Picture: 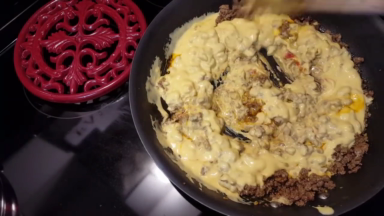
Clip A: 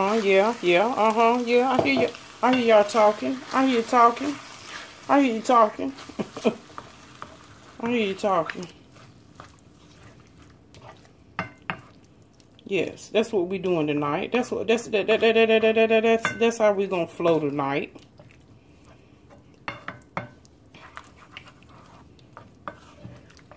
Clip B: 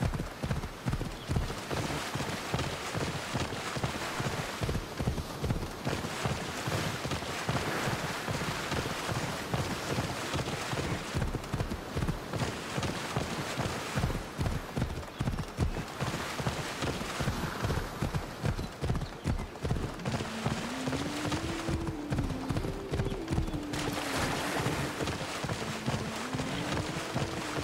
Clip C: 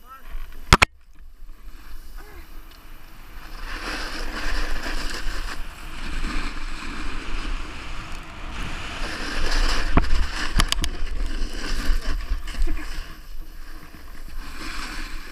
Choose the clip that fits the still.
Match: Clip A